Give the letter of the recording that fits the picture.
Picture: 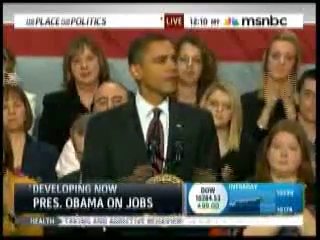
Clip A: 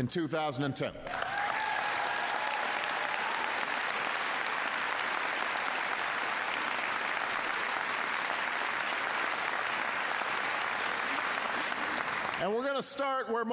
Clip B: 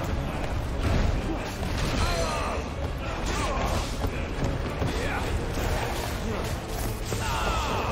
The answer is A